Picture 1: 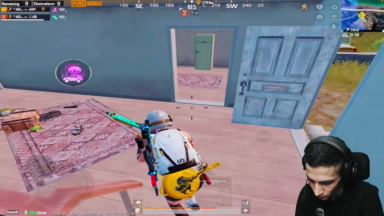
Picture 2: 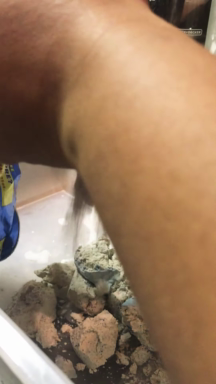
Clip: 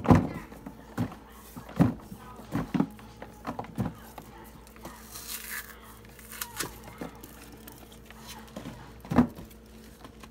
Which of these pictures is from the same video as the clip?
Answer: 2